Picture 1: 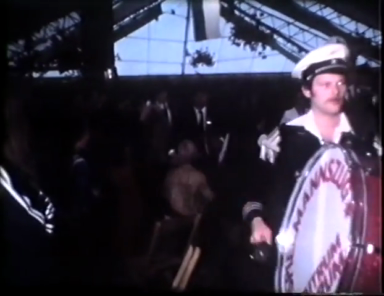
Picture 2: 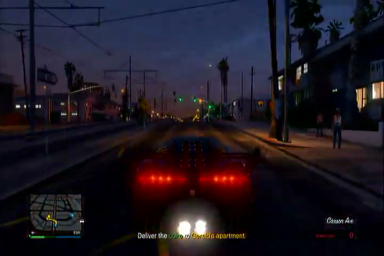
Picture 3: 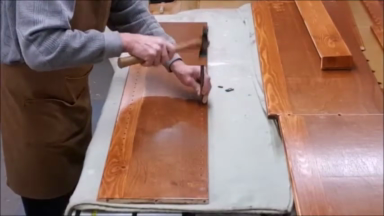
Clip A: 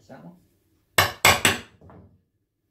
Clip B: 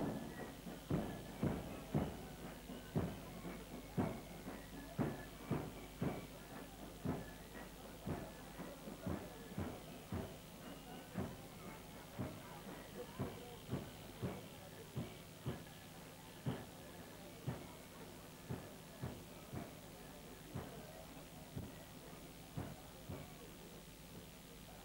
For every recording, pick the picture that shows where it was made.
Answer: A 3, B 1